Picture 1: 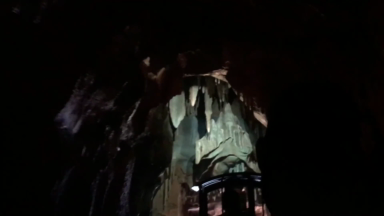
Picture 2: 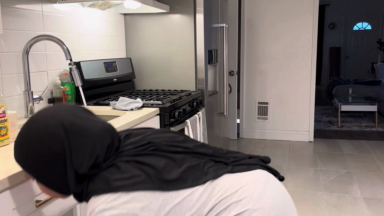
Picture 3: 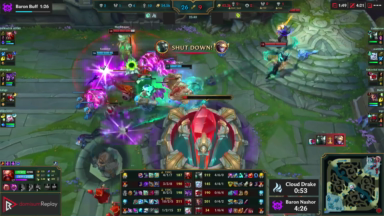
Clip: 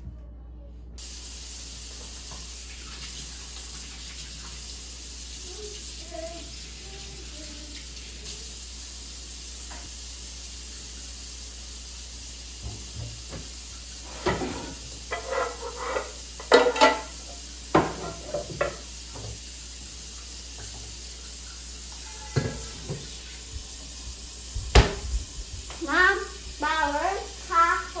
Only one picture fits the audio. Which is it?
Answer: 2